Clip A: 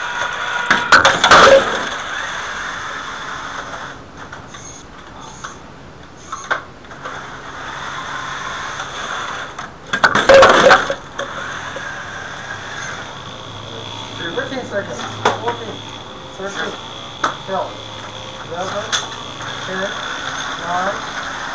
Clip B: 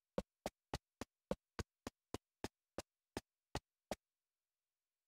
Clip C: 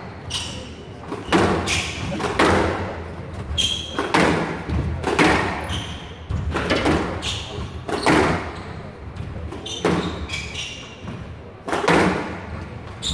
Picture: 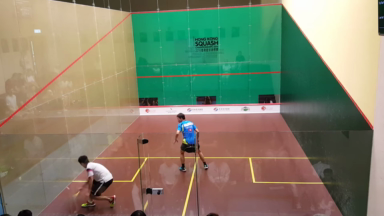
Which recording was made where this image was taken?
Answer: C